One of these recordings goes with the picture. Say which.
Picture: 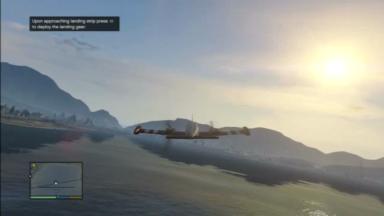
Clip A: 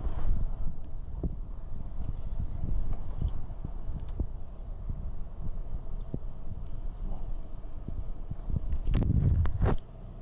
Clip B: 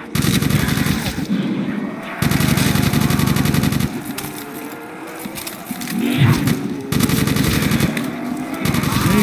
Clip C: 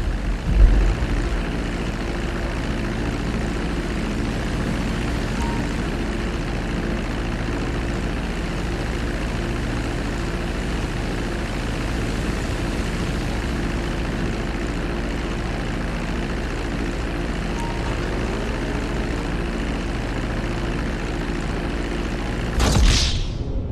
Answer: C